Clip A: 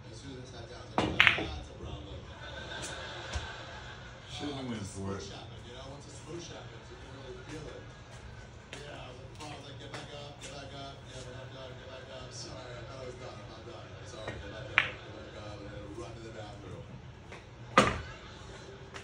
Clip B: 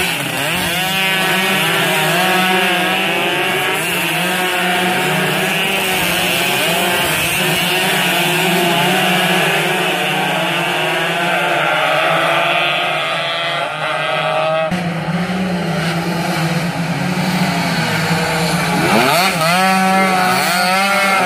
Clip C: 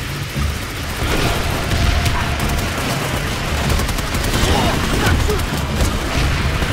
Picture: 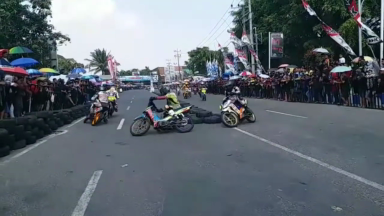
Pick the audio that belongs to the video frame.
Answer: B